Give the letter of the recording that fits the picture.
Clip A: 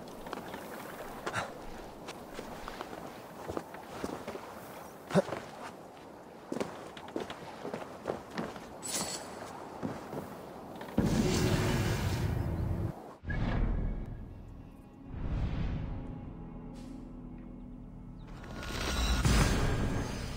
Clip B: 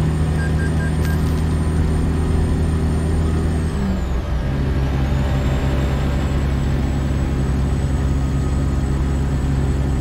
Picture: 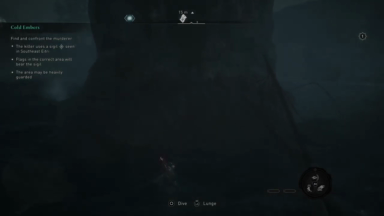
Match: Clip A